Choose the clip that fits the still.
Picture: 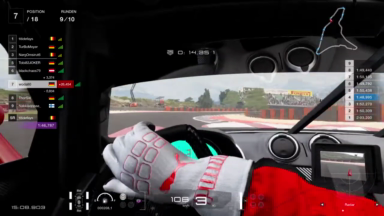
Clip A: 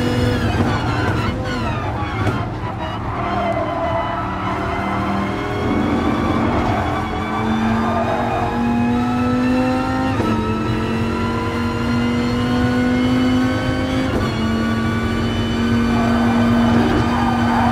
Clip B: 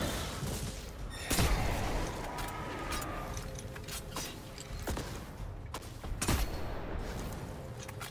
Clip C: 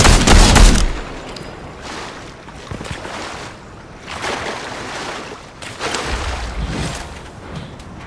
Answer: A